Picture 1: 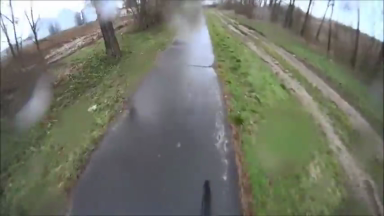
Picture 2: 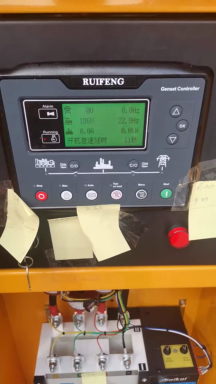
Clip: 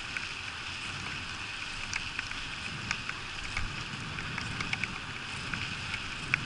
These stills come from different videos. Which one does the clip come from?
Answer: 1